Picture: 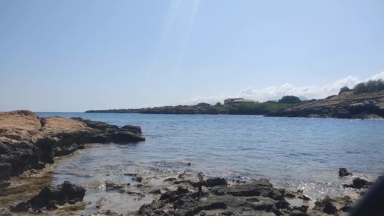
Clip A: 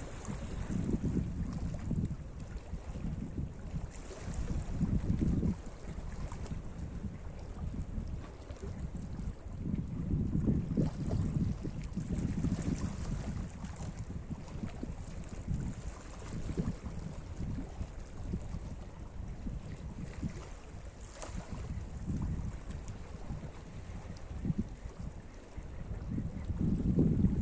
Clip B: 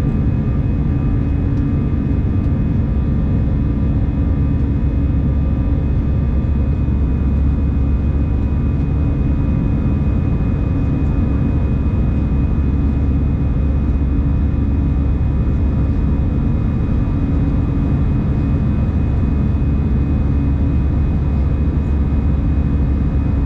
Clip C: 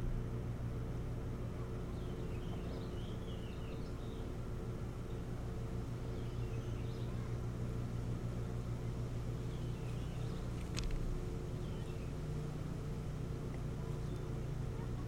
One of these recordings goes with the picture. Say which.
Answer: A